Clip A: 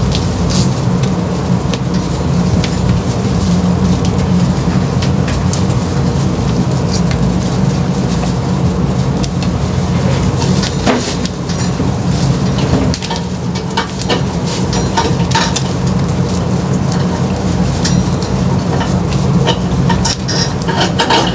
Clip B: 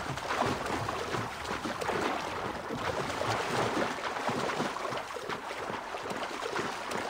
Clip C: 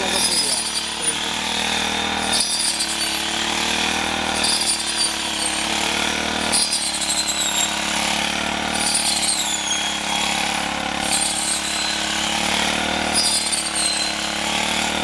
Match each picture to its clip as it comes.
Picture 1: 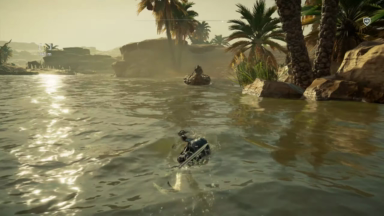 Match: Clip B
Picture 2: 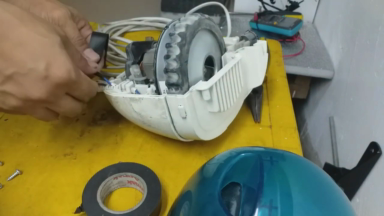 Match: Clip A